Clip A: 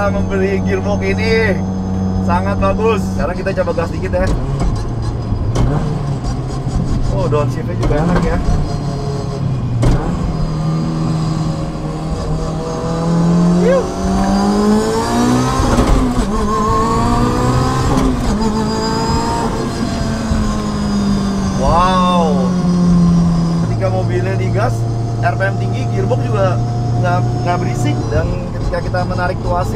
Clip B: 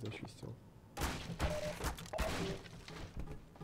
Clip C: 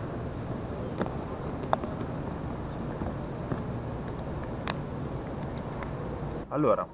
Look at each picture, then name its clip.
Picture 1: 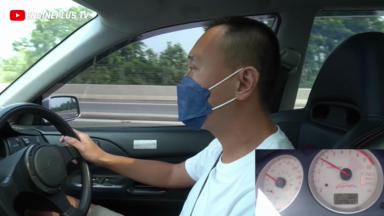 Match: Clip A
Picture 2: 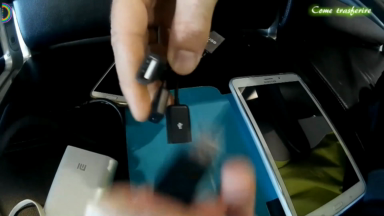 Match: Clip C